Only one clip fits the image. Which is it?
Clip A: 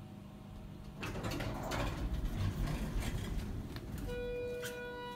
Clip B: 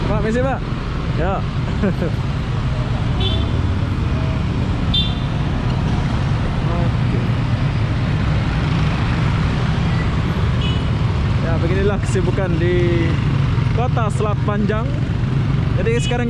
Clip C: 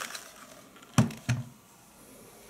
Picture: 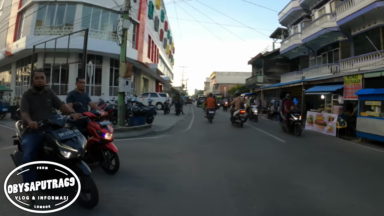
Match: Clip B